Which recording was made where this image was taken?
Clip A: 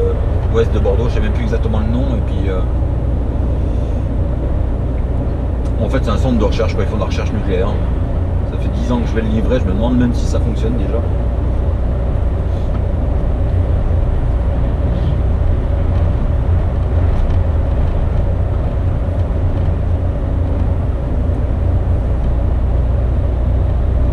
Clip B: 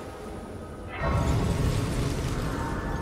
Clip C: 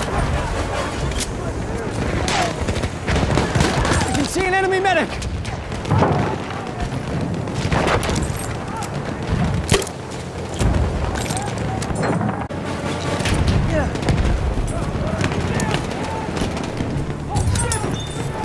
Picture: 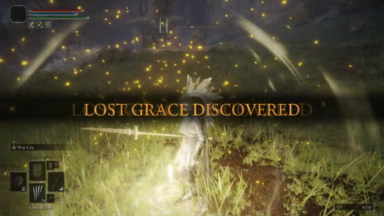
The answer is B